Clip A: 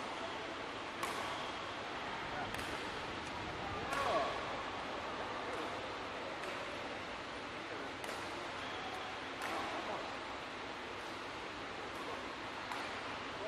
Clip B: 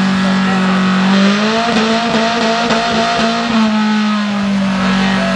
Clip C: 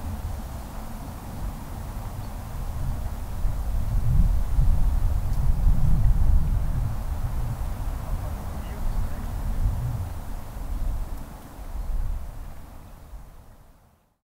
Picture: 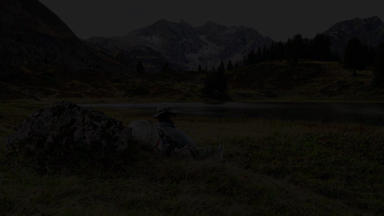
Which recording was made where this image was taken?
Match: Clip C